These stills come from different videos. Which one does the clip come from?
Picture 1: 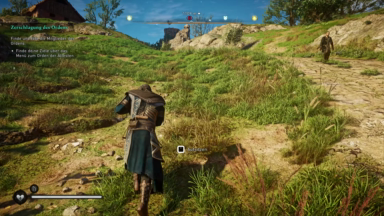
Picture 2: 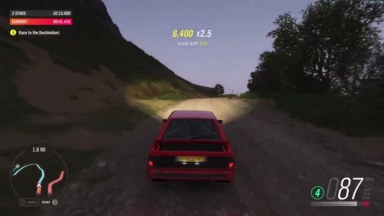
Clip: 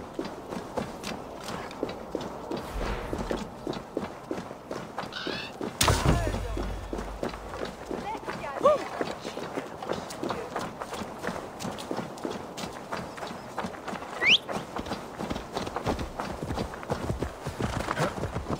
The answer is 1